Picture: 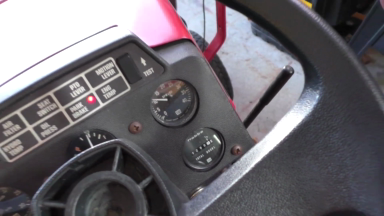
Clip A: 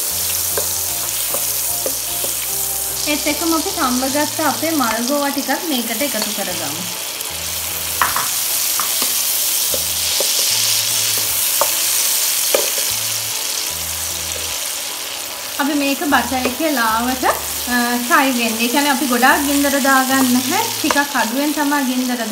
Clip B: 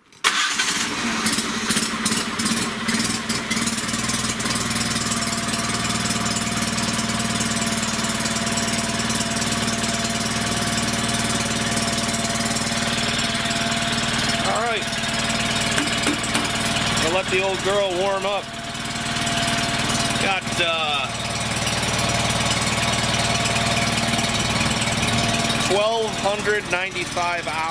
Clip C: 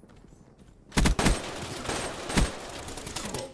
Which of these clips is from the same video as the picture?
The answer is B